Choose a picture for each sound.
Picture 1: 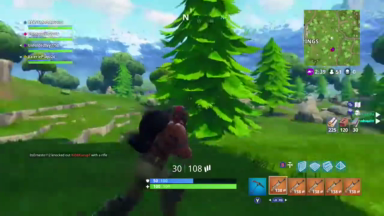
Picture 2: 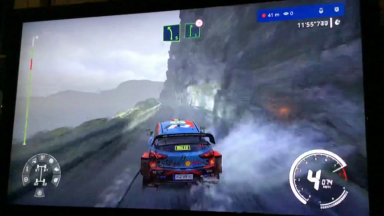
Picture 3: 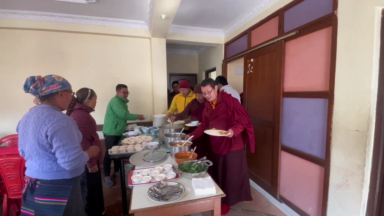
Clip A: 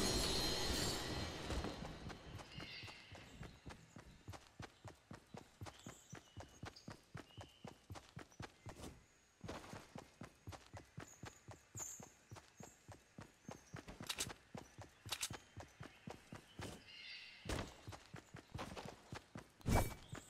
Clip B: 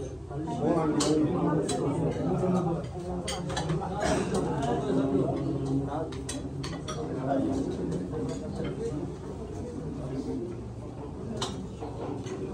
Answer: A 1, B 3